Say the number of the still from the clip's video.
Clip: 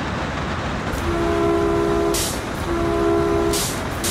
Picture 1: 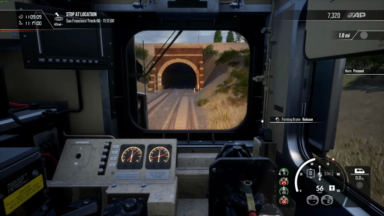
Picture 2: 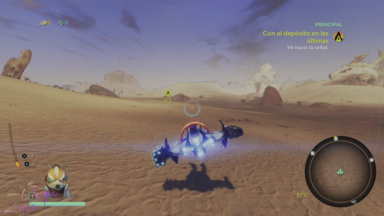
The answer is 1